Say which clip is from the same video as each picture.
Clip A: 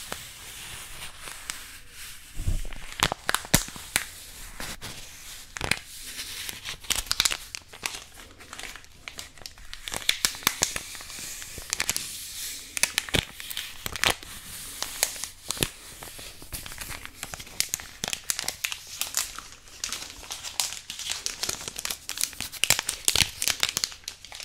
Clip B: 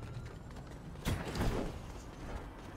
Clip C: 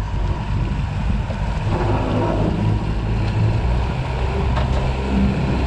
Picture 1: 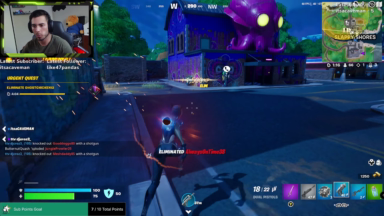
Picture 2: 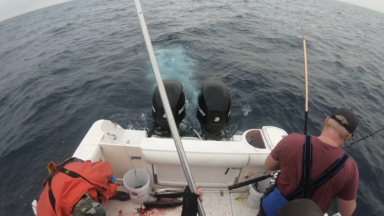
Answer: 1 B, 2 C